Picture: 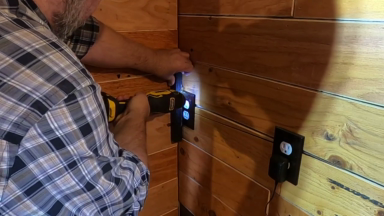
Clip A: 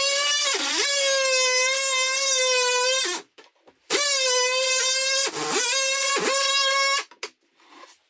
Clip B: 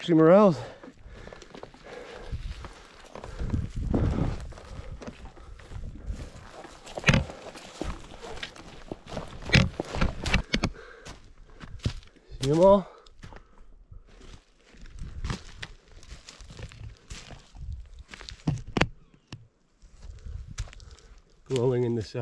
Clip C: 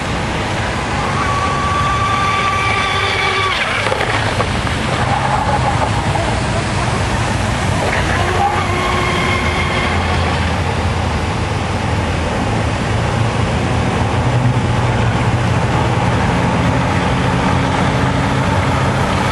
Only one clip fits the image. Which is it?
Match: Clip A